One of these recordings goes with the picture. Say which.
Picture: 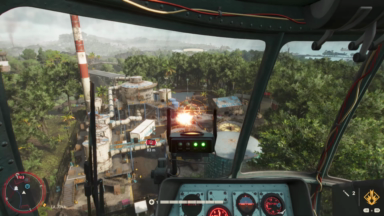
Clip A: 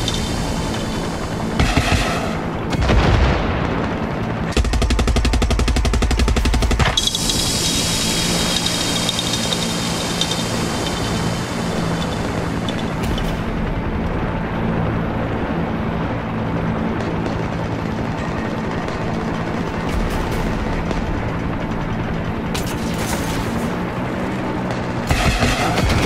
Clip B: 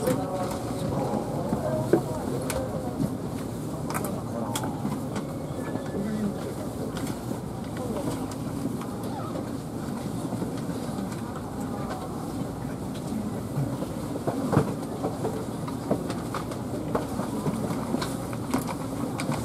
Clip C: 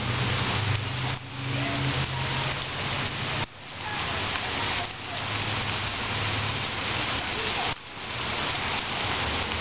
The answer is A